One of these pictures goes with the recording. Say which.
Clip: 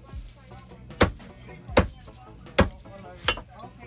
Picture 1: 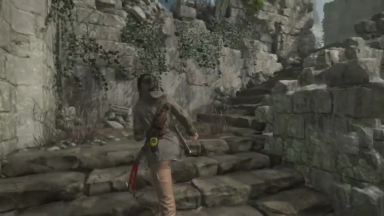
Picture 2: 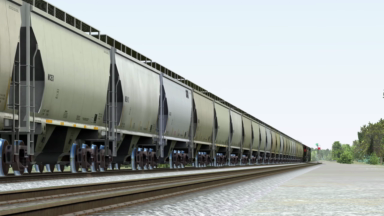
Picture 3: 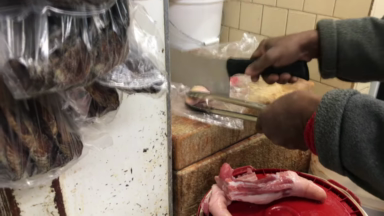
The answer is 3